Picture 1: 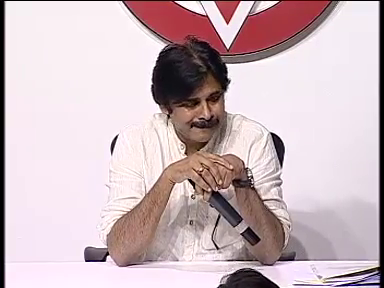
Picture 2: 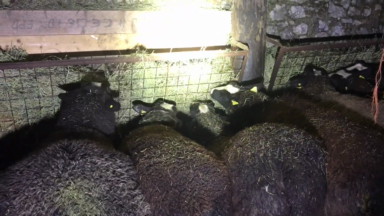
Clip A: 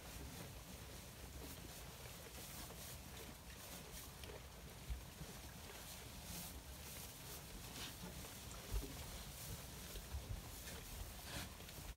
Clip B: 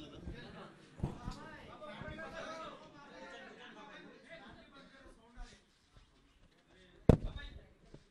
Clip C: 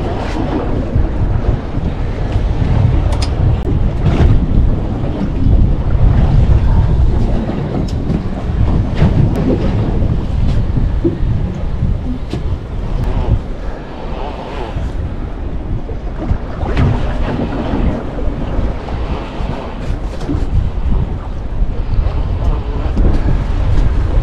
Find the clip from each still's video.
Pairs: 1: B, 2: A